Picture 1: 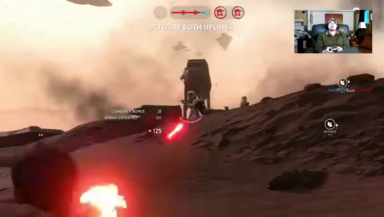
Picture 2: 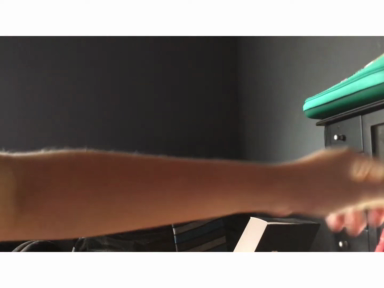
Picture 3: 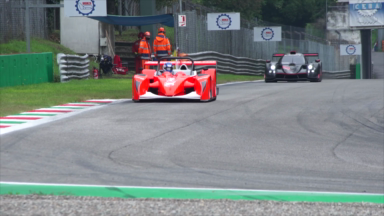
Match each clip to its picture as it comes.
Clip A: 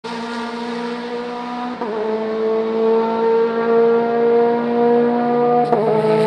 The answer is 3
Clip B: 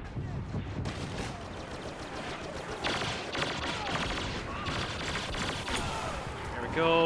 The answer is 1